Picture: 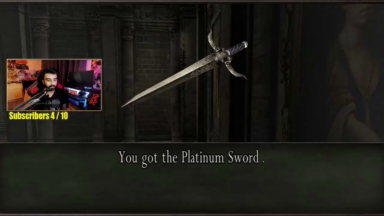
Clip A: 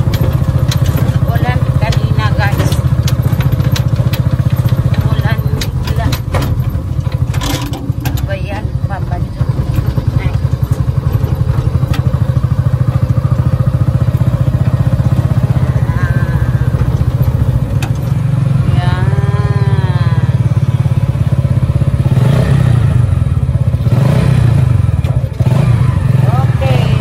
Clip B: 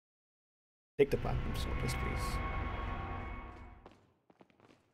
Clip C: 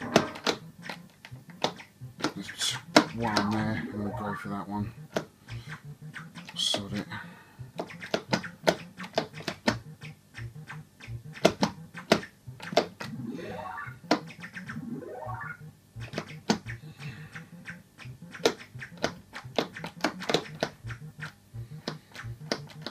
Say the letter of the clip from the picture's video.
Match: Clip B